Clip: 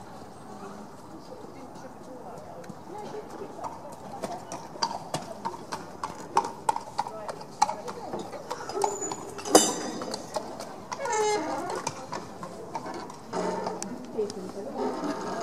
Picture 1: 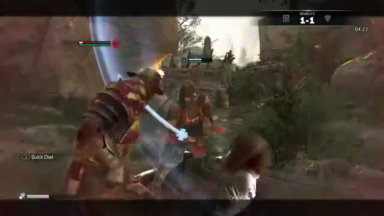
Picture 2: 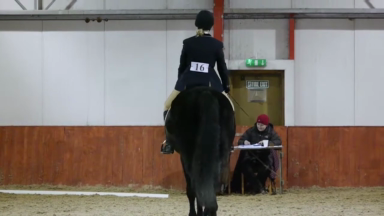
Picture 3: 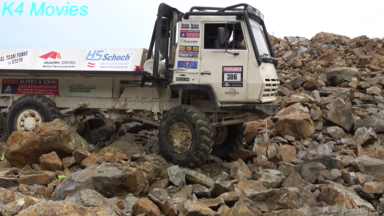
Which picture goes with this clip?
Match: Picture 2